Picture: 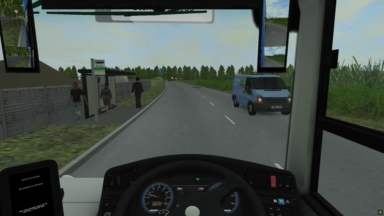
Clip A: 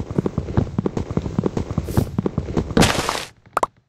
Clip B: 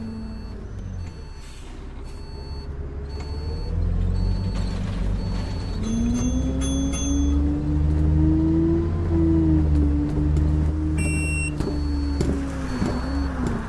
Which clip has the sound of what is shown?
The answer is B